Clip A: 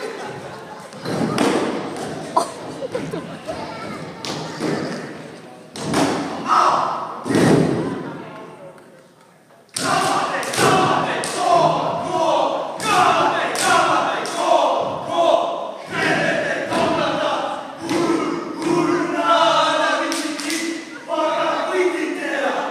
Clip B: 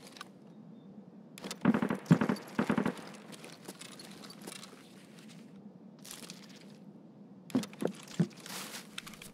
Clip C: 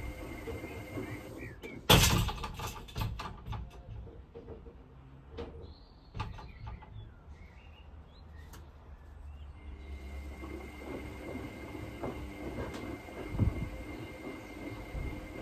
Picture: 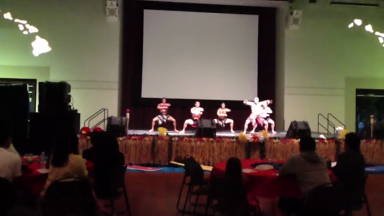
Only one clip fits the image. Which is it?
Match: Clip A